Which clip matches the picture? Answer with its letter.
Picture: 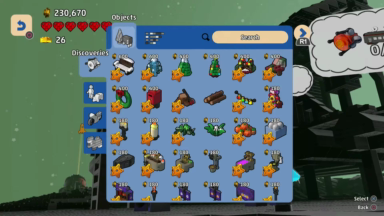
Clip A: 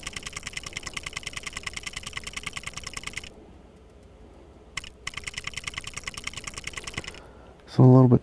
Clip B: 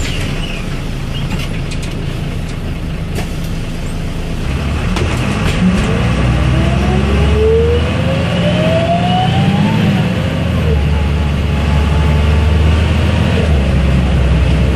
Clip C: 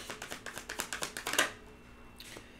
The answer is A